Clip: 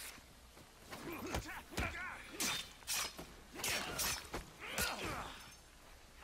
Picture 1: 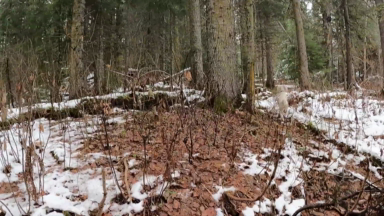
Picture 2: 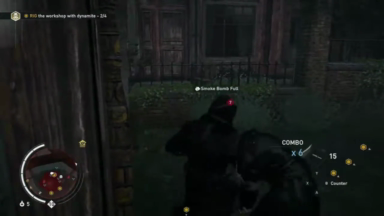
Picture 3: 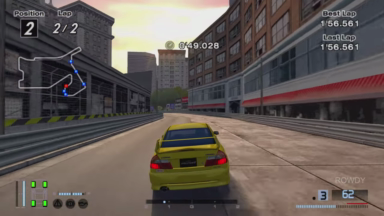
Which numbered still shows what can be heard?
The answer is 2